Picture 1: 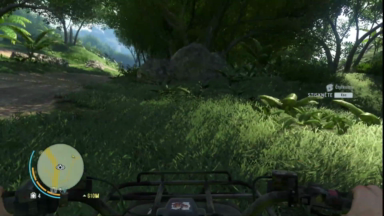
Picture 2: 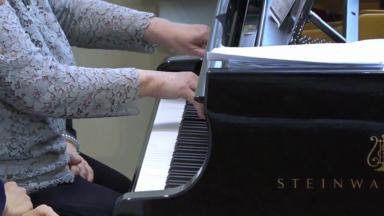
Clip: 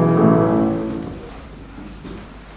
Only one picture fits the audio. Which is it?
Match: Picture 2